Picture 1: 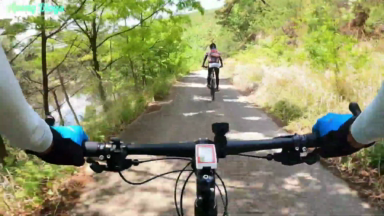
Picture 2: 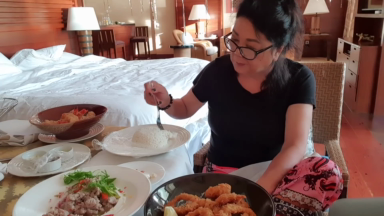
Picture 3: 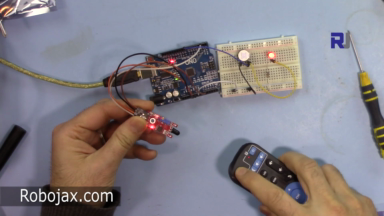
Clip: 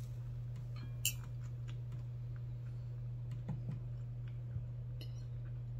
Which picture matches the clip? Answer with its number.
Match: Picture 2